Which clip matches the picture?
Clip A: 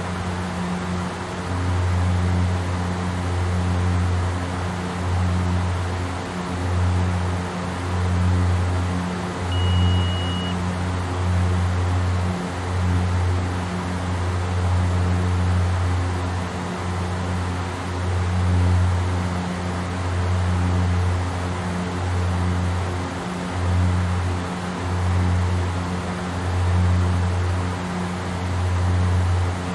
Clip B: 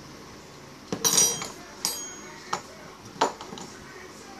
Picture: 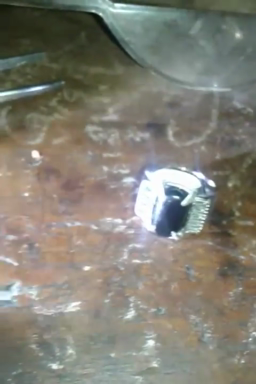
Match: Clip B